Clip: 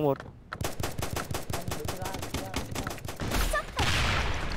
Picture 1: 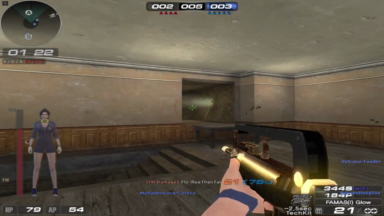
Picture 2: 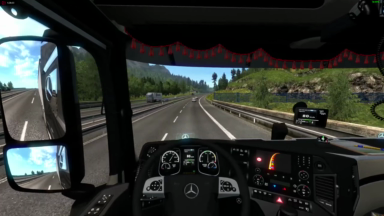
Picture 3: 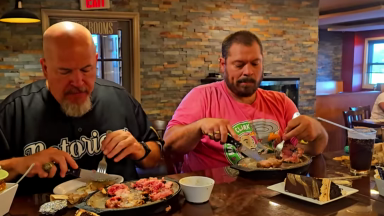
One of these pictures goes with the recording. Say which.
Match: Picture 1